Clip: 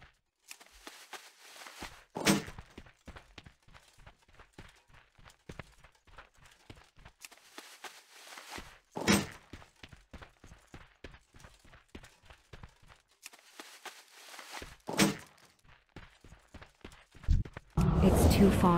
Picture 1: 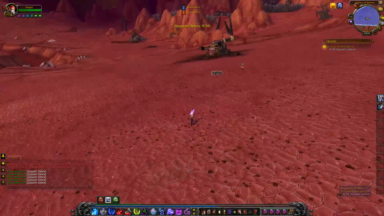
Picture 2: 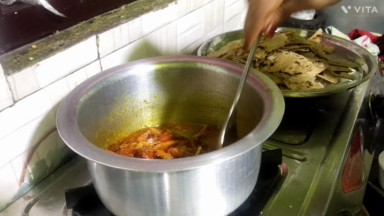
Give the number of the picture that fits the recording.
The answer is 1